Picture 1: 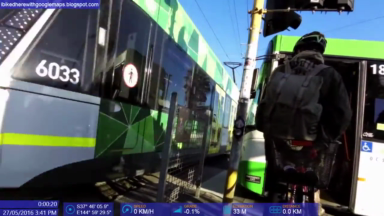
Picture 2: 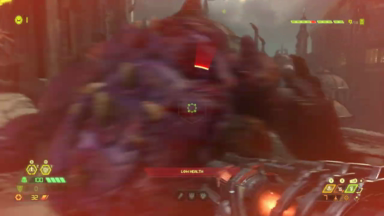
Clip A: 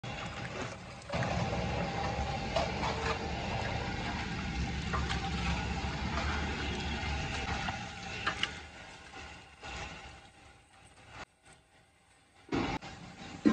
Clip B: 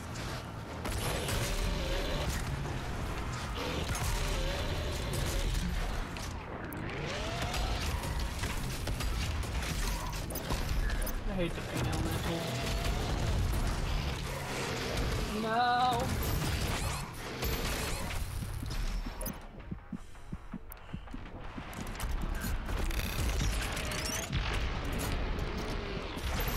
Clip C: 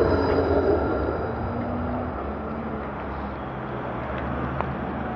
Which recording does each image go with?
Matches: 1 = C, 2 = B